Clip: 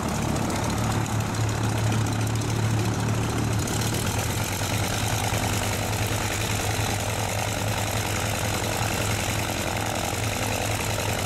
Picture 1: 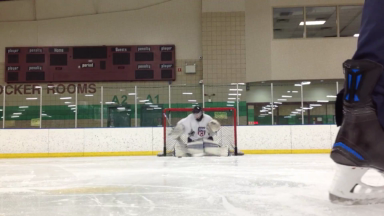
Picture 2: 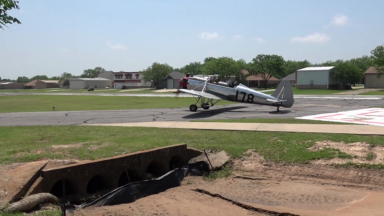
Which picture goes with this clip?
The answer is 2